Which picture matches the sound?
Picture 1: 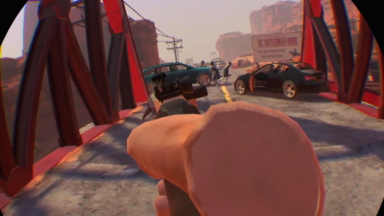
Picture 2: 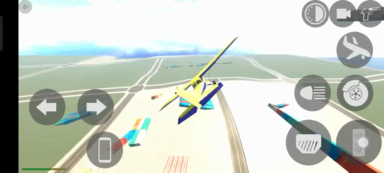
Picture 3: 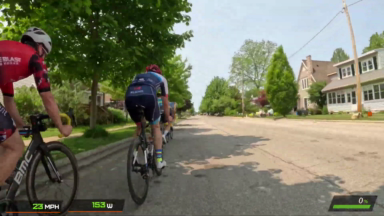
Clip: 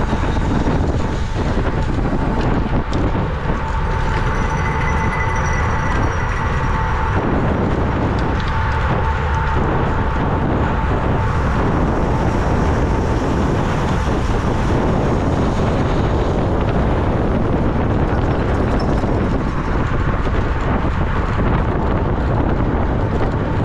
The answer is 3